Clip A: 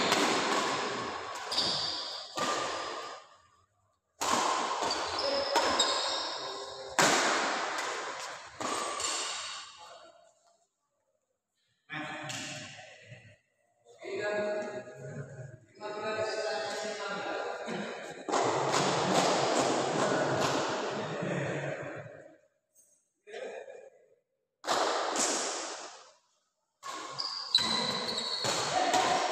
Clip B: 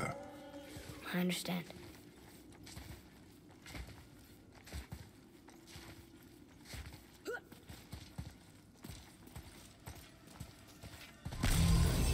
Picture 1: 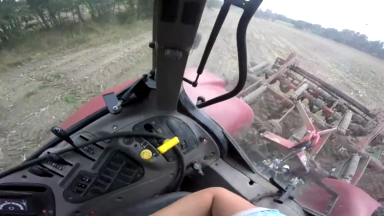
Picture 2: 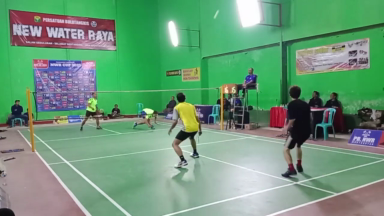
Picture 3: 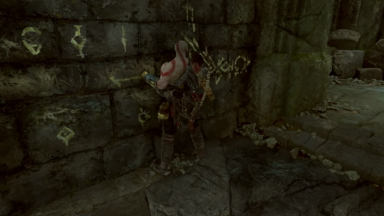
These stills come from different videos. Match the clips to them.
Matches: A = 2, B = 3